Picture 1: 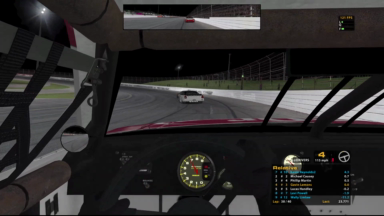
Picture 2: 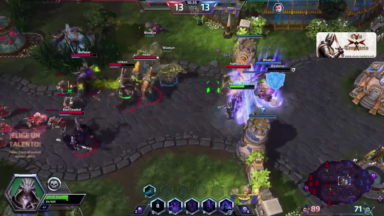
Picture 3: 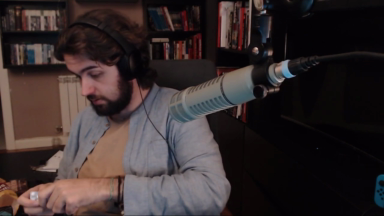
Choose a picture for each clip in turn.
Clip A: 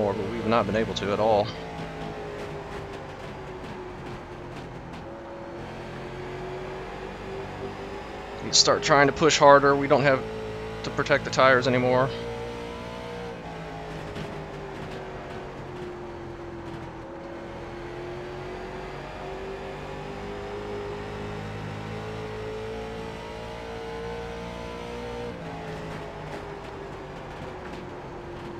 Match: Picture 1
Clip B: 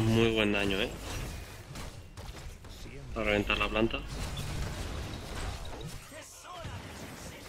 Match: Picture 2